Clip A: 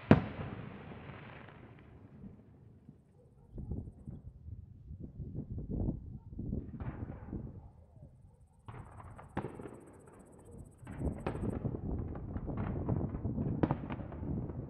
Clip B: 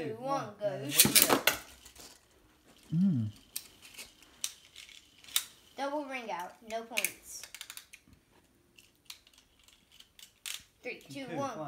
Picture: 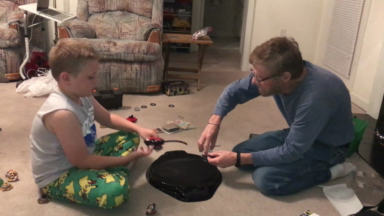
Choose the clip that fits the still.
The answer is B